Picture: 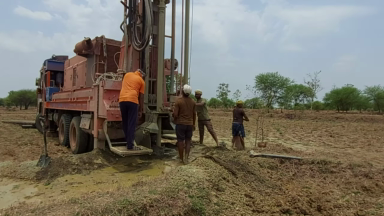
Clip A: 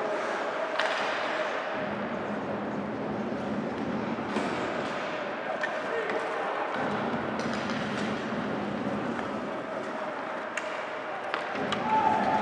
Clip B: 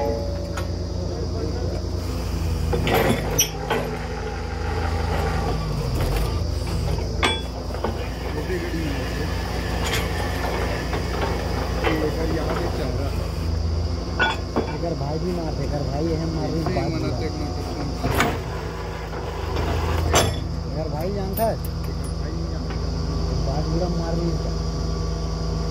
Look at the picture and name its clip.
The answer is B